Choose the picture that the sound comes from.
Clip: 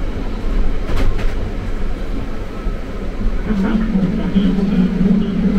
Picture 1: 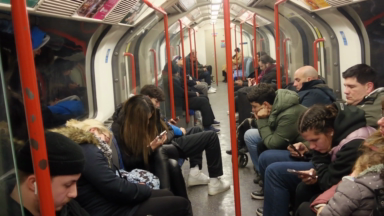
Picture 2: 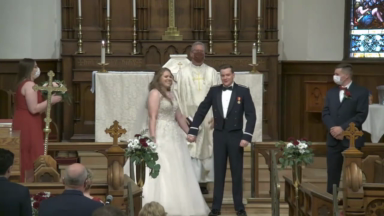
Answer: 1